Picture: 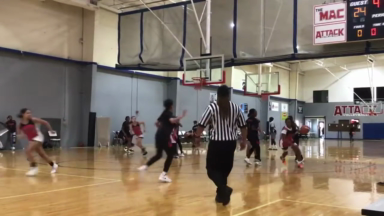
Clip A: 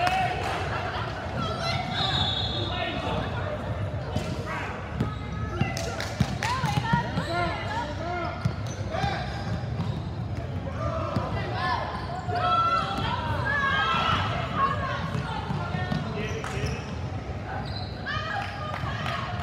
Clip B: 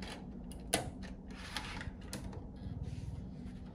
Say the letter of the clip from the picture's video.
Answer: A